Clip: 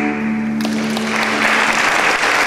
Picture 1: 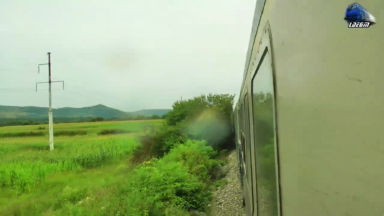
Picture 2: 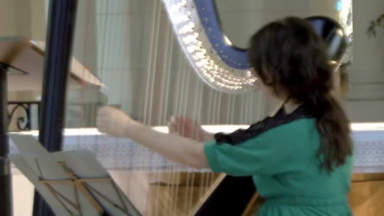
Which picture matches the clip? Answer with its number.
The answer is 2